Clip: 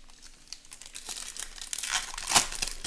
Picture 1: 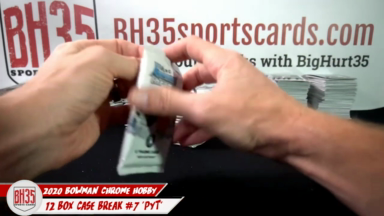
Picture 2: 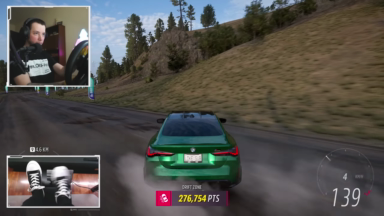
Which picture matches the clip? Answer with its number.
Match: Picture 1